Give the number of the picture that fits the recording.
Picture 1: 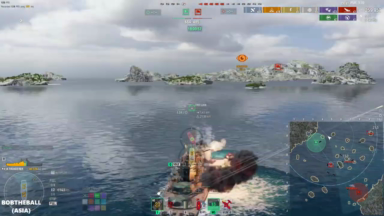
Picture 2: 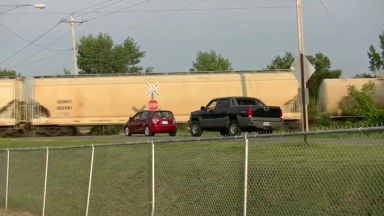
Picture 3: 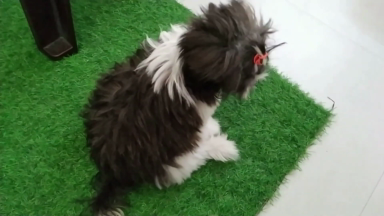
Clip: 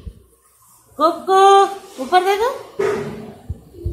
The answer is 3